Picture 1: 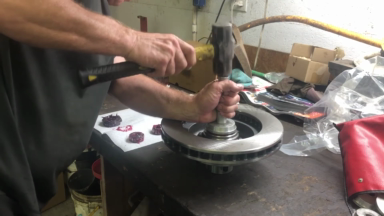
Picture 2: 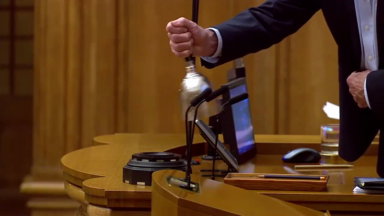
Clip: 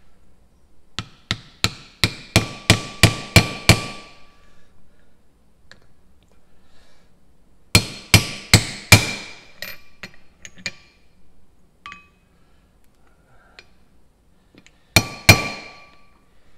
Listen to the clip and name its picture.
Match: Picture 1